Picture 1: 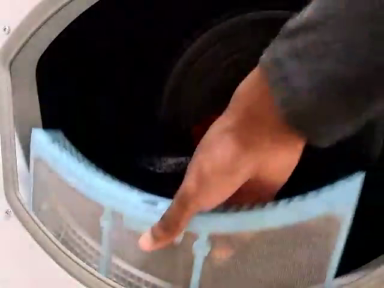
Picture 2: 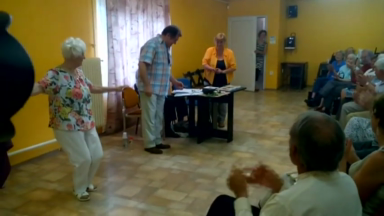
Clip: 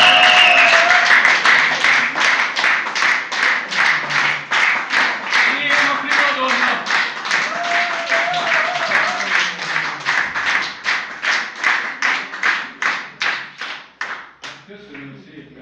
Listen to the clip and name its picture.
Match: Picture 2